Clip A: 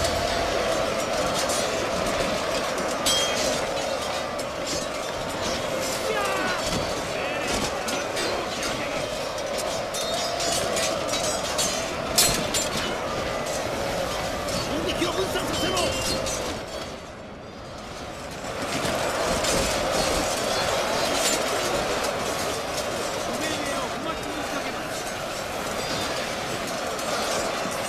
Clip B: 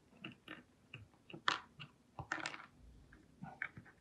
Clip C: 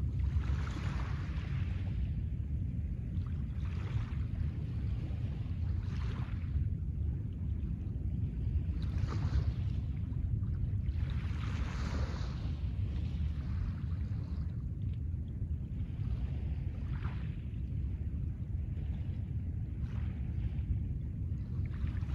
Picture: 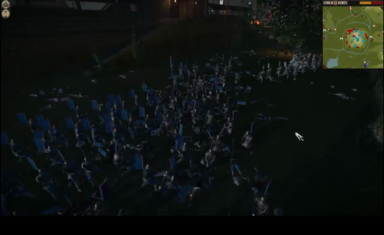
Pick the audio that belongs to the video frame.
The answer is A